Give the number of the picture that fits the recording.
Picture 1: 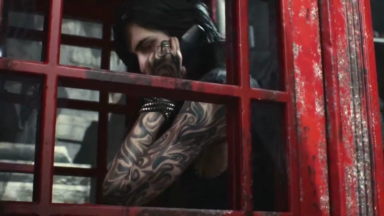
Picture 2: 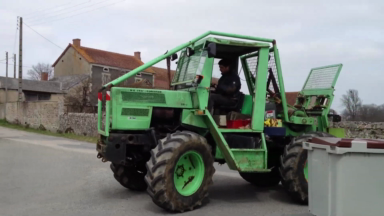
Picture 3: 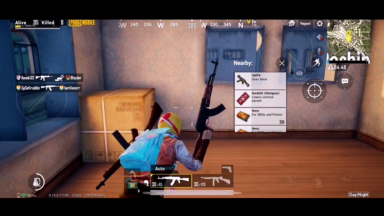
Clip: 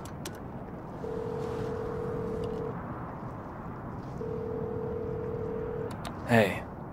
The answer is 1